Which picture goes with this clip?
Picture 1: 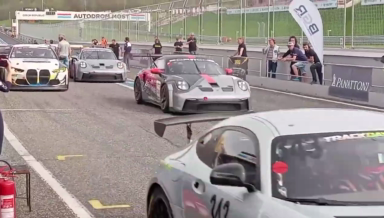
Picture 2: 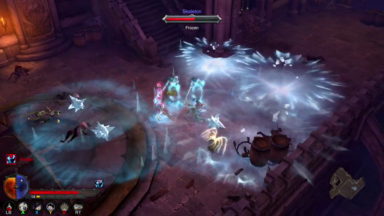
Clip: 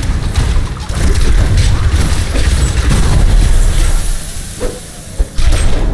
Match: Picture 2